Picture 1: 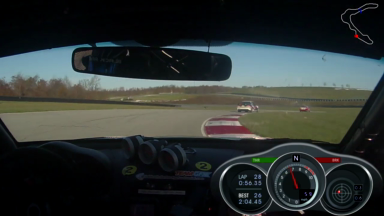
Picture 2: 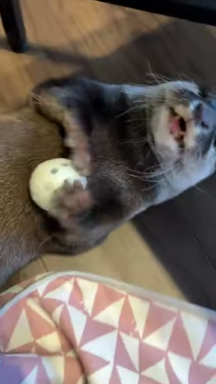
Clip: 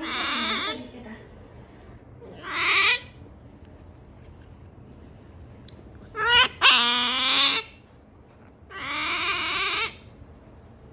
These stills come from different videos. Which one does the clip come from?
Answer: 2